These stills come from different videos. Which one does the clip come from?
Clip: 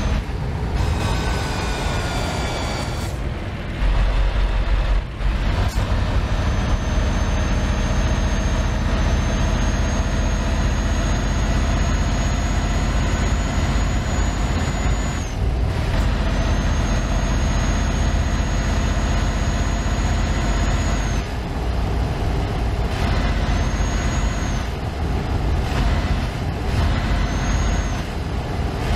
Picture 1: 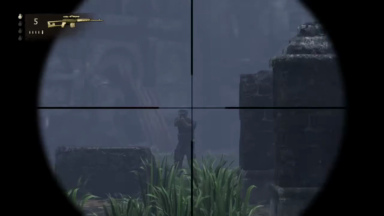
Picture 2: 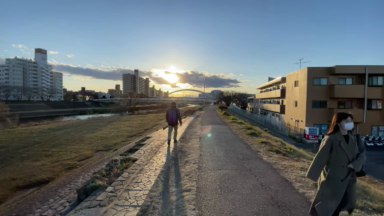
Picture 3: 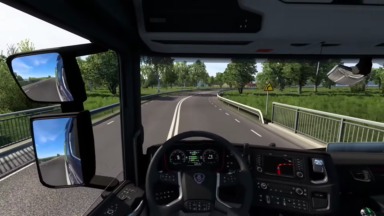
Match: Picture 3